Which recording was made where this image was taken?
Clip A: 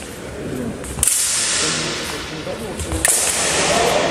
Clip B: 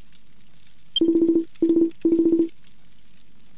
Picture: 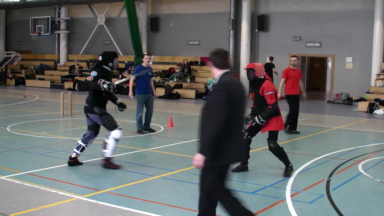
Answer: A